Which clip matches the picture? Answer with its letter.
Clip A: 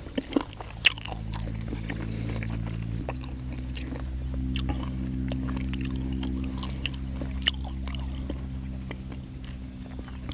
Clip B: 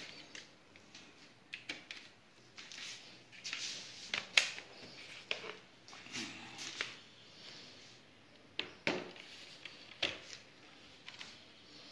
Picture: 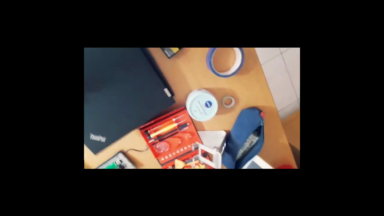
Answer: B